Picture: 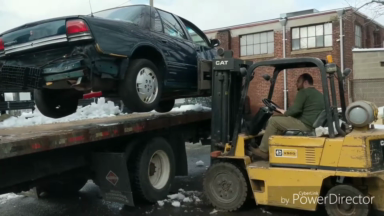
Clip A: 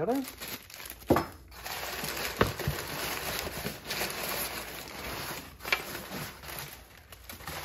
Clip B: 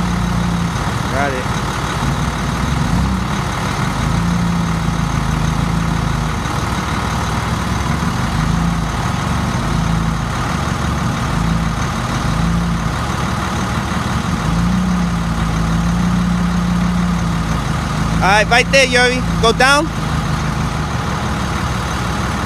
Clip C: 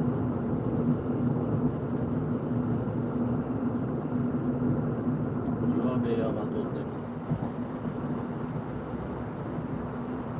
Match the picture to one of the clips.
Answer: B